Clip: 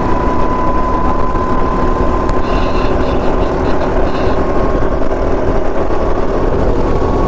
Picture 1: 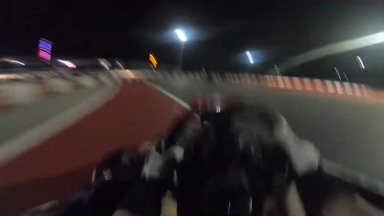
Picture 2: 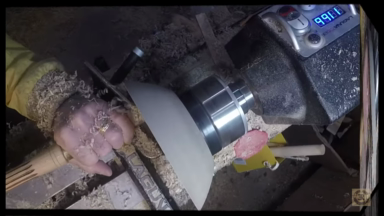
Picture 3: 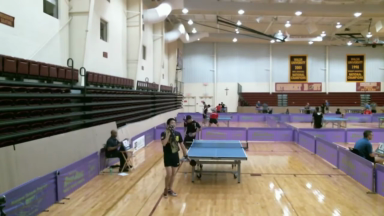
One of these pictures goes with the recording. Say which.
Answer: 1